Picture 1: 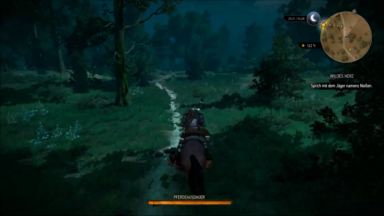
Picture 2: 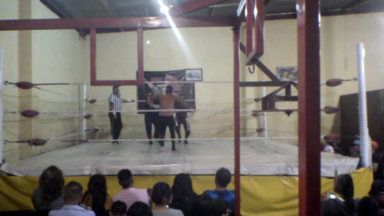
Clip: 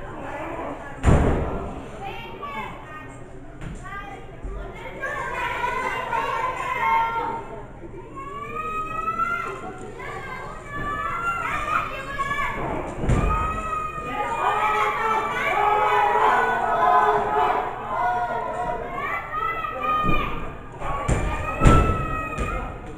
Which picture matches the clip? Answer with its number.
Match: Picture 2